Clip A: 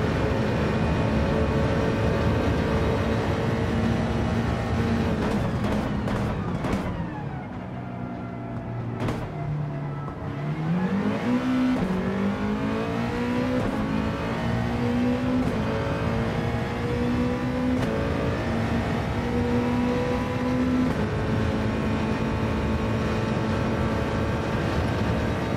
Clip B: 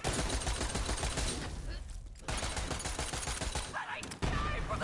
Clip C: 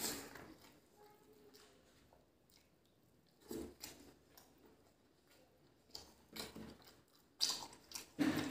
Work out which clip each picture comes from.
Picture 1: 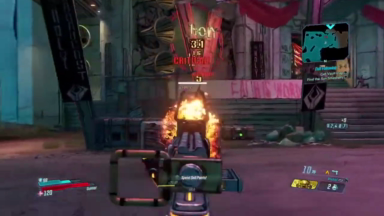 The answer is B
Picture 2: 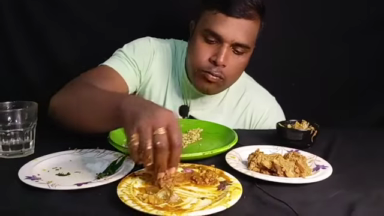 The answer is C